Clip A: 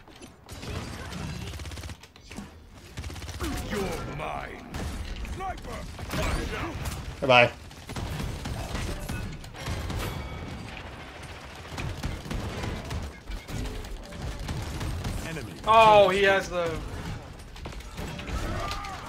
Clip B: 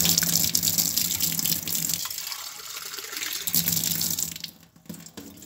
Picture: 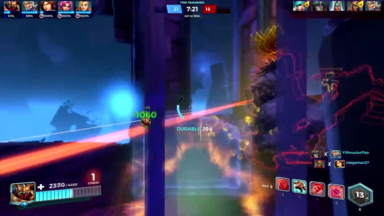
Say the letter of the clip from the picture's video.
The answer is A